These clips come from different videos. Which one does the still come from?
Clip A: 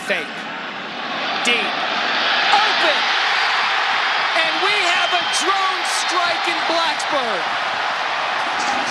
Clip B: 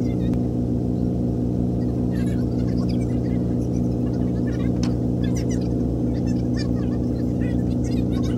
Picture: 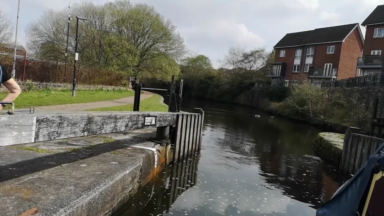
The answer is B